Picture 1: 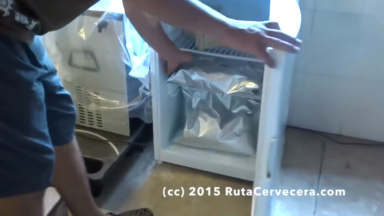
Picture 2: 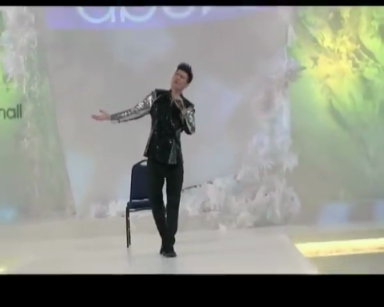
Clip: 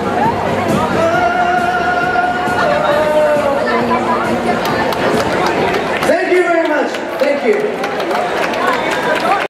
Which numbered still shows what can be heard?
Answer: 2